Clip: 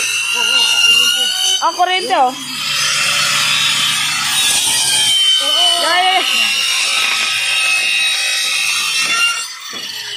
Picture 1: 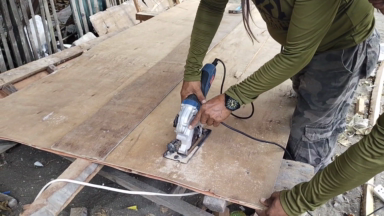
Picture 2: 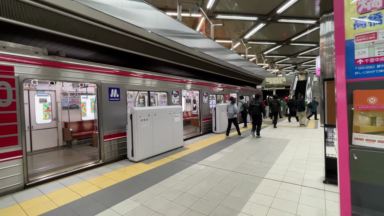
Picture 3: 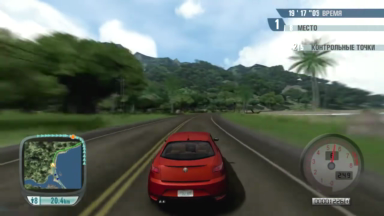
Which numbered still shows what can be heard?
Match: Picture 1